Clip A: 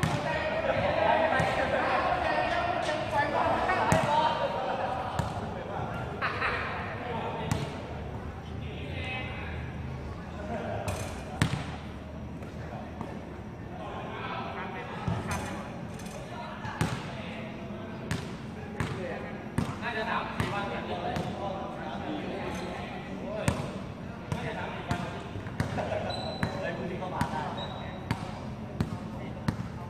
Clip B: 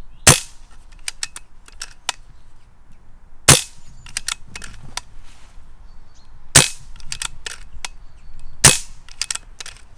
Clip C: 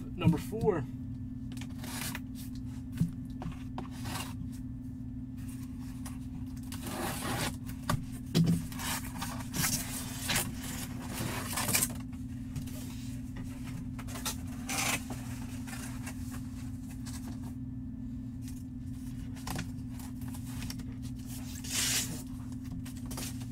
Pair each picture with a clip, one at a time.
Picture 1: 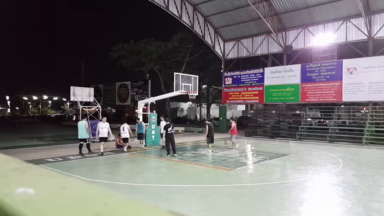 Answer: A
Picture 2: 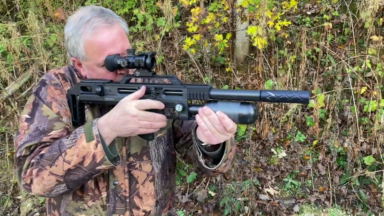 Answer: B